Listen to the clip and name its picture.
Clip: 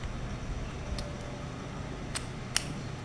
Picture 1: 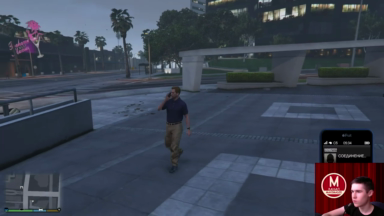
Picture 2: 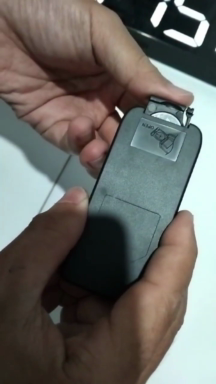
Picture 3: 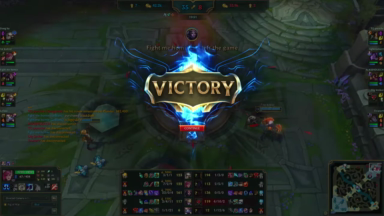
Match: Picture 2